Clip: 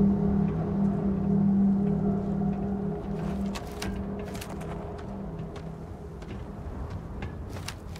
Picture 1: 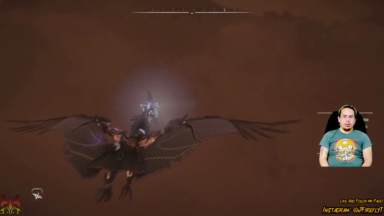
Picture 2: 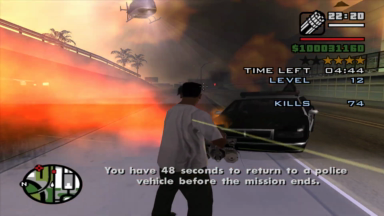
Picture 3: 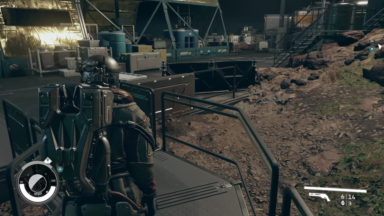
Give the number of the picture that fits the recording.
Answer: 3